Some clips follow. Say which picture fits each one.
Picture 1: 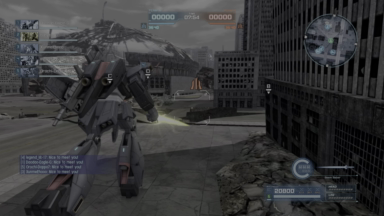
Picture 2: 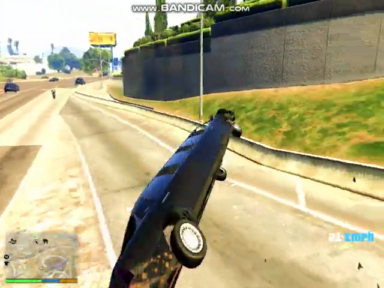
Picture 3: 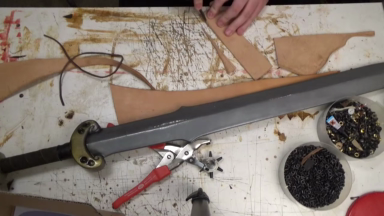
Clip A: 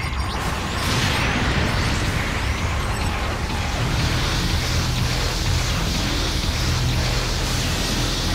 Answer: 1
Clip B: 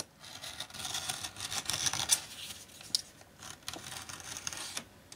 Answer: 3